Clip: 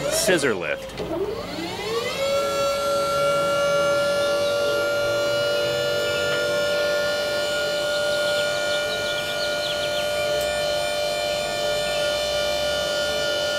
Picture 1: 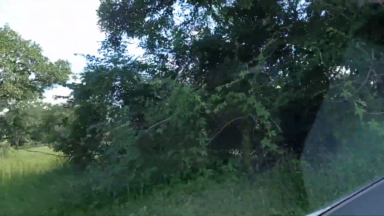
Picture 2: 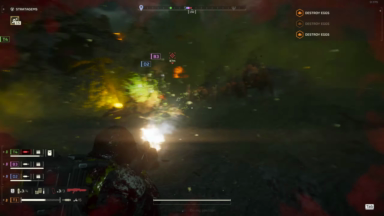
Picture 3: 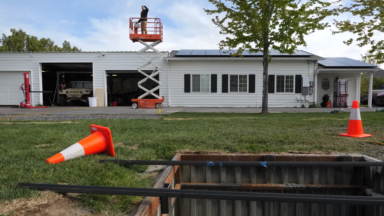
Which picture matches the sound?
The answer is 3